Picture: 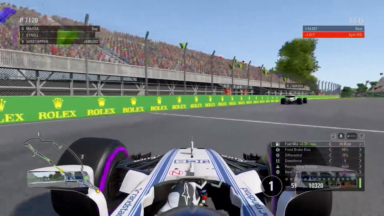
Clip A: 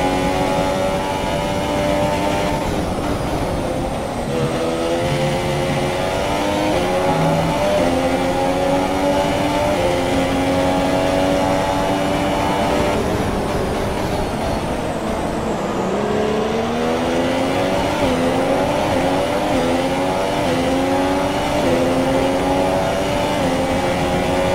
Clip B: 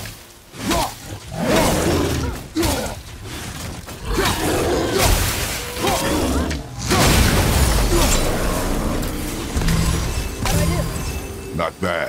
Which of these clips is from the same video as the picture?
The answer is A